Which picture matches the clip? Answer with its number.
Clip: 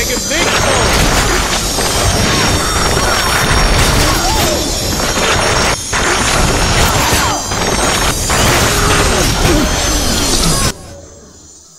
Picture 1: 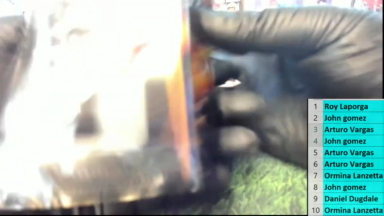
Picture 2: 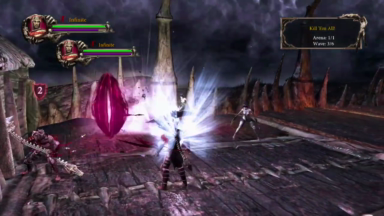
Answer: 2